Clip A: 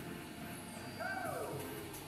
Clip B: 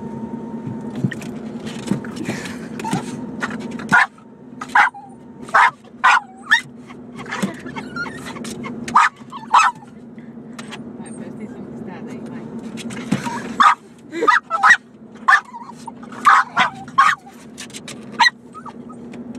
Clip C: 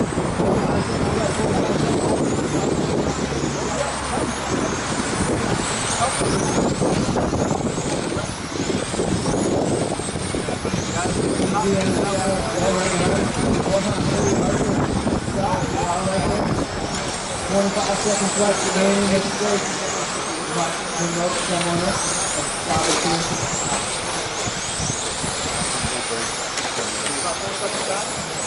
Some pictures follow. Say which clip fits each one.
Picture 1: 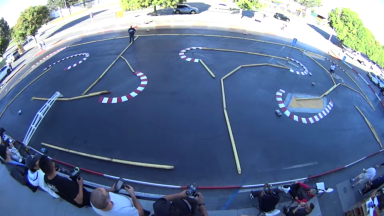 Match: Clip C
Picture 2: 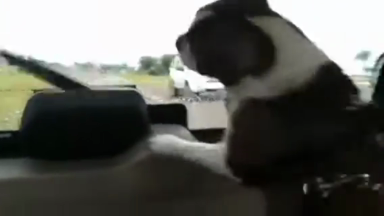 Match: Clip B